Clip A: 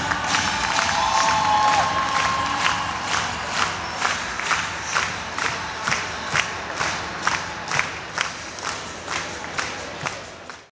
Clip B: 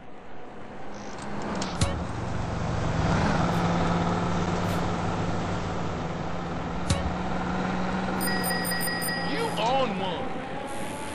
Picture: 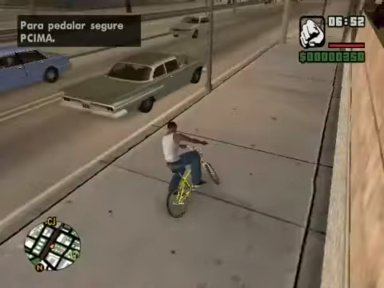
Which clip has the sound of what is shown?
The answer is B